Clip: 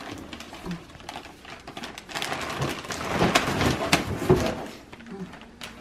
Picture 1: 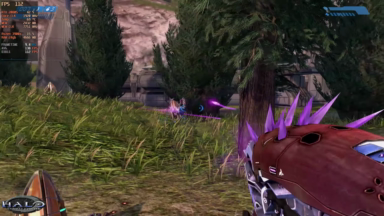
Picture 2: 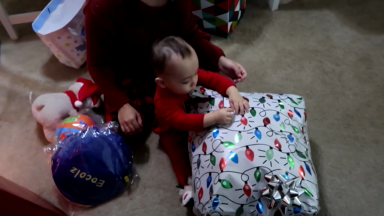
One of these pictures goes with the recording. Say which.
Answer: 2